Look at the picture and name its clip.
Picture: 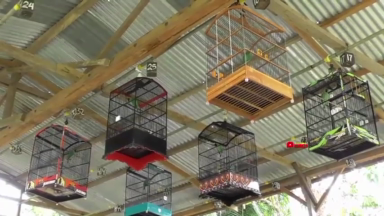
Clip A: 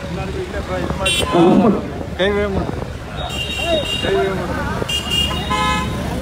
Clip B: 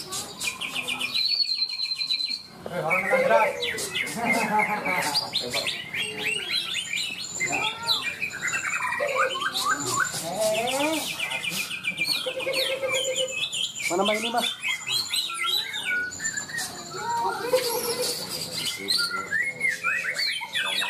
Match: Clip B